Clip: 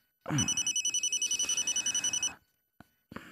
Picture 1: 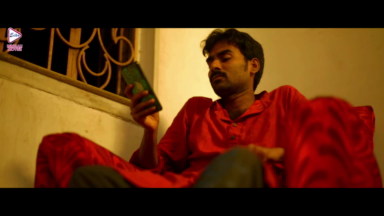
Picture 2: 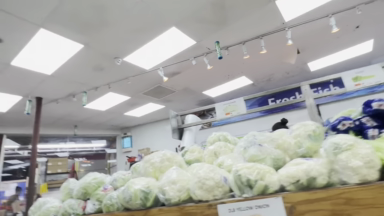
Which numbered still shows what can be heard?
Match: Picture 1